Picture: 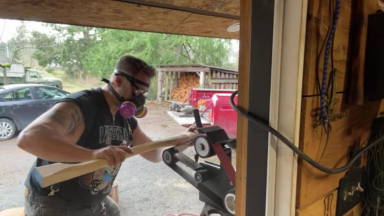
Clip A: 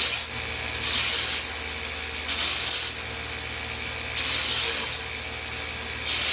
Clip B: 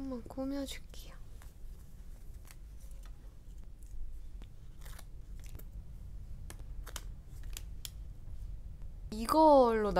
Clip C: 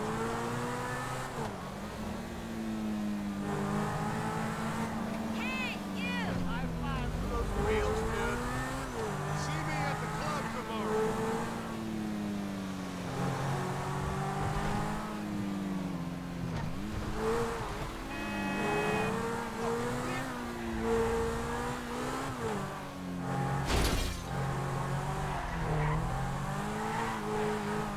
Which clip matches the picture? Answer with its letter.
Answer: A